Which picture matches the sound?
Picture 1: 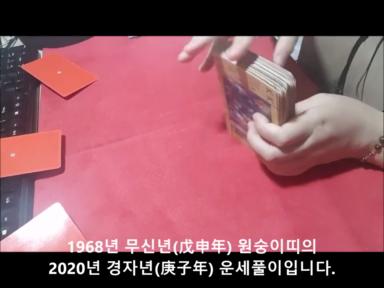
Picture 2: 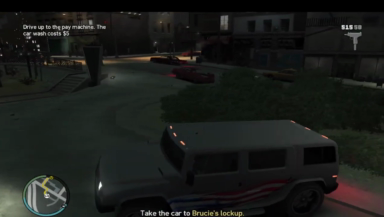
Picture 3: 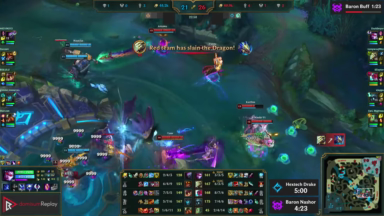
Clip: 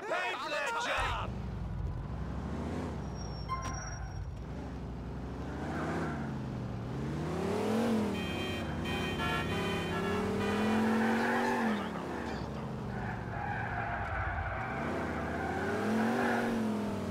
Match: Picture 2